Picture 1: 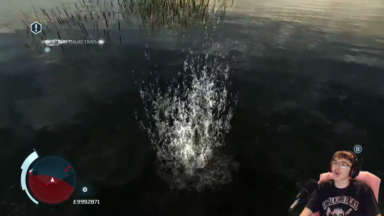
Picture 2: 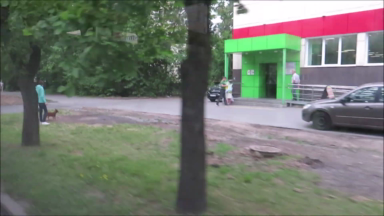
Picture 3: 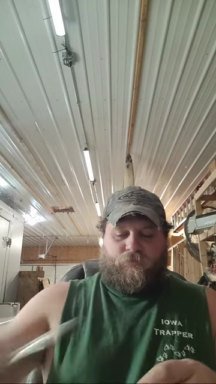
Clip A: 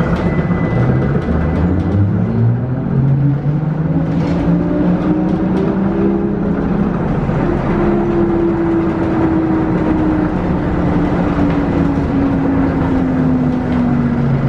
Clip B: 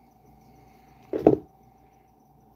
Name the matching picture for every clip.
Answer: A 2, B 3